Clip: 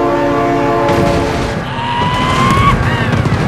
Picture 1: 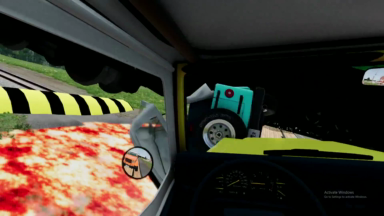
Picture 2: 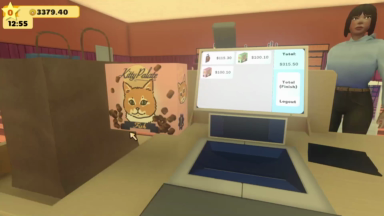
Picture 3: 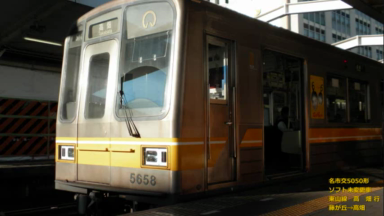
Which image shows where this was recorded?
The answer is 1